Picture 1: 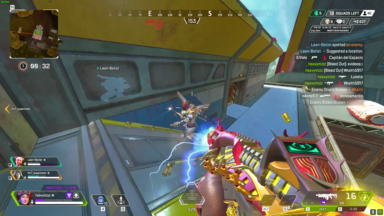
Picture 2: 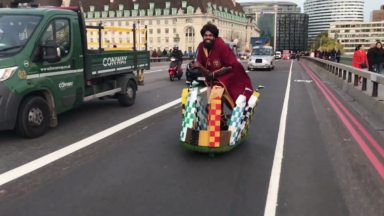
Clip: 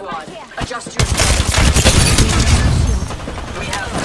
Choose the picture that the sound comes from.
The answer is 1